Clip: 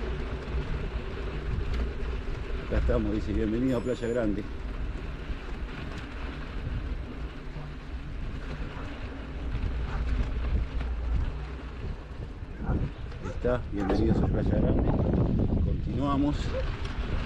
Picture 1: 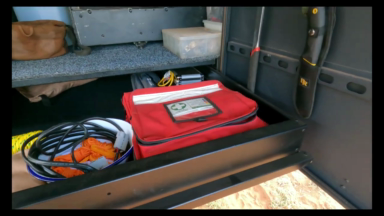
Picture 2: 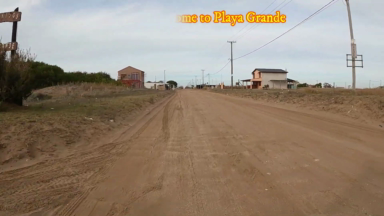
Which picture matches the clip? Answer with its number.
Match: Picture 2